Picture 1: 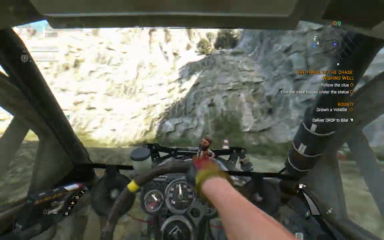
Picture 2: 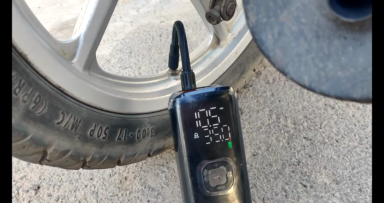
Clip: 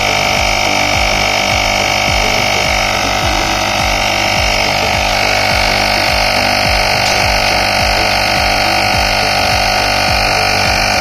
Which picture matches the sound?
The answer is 2